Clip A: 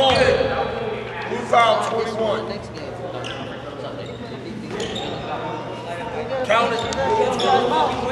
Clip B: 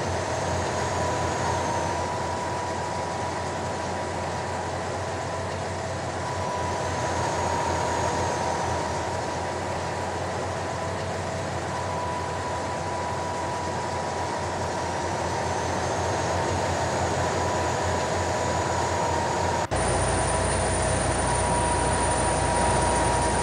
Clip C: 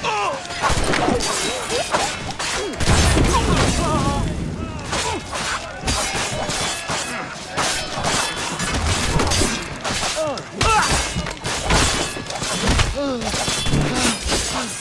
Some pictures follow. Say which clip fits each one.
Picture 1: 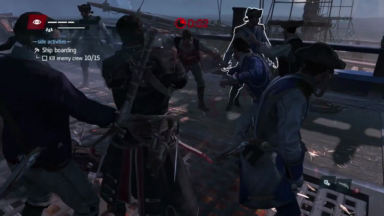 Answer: C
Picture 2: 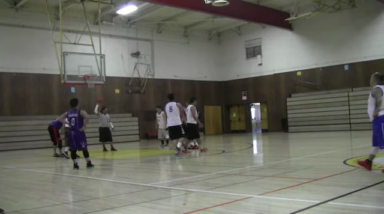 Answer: A